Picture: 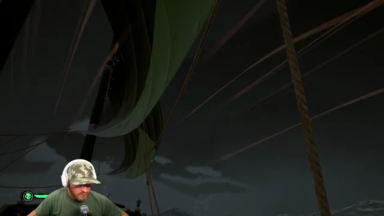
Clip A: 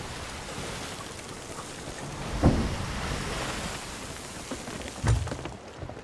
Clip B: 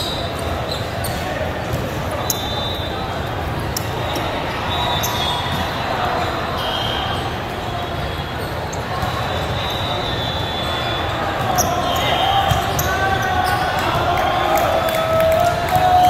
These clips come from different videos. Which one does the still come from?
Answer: A